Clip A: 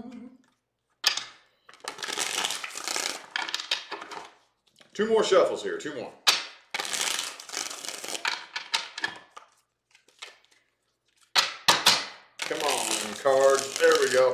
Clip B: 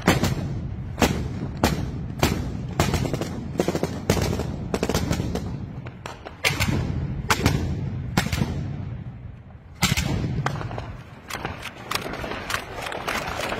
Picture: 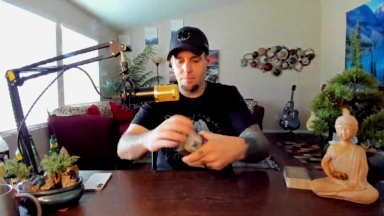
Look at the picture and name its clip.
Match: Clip A